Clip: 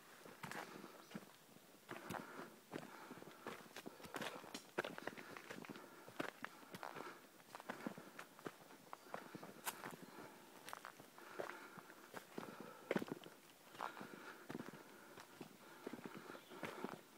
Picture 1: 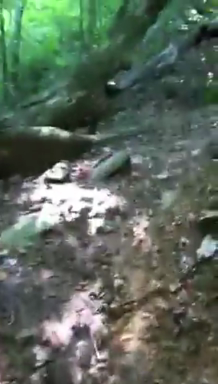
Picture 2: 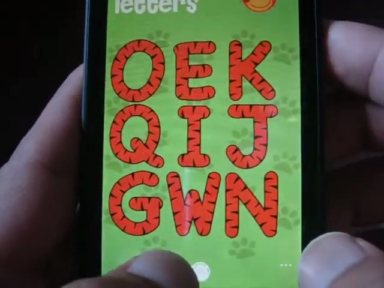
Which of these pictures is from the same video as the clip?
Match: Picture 1